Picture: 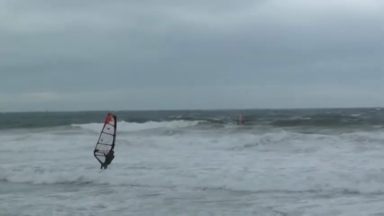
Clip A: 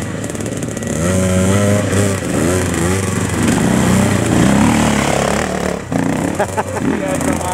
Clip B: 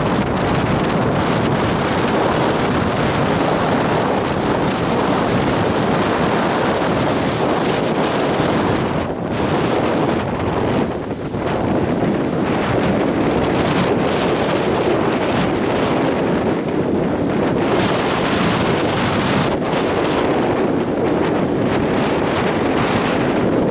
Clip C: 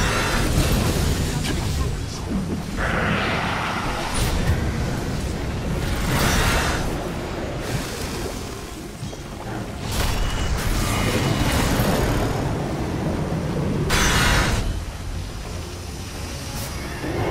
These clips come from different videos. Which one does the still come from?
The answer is B